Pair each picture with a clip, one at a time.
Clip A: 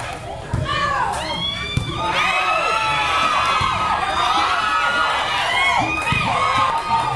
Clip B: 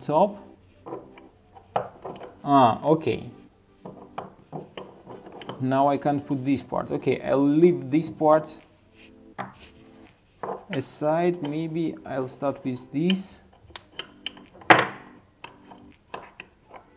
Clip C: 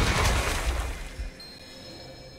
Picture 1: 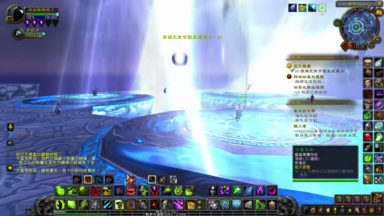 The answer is C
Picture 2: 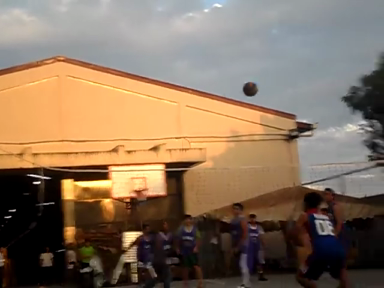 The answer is A